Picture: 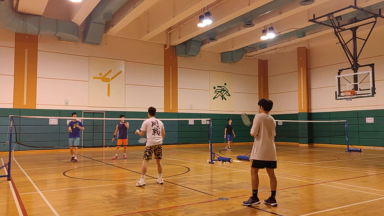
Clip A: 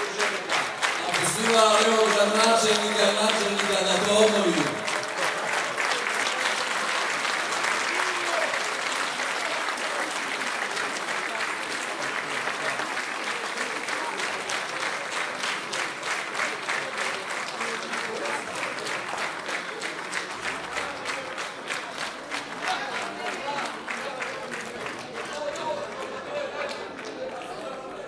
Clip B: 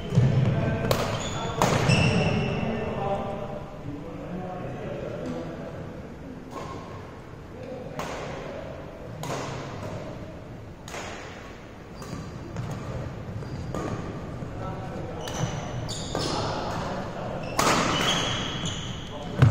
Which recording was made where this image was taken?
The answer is B